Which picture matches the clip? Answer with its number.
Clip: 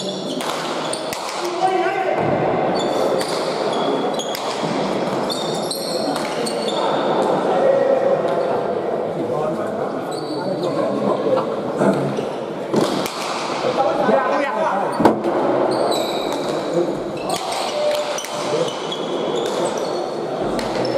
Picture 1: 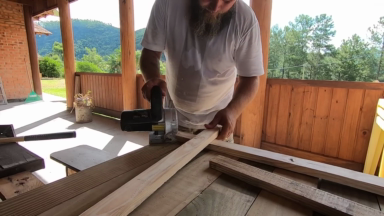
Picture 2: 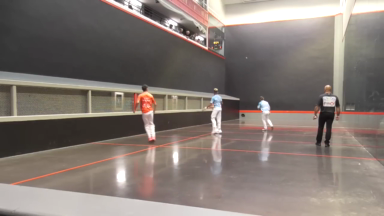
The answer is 2